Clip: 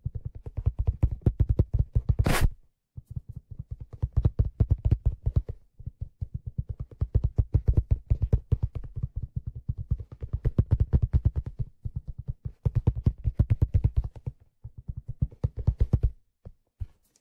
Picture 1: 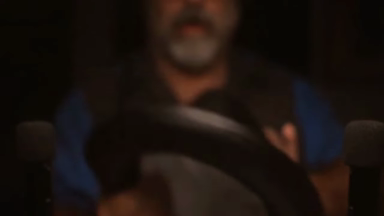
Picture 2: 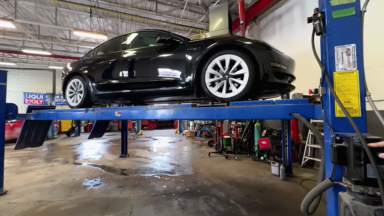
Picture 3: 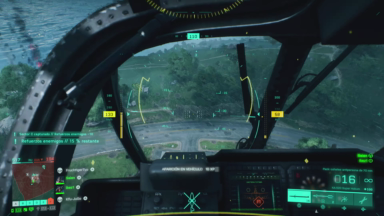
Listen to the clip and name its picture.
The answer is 1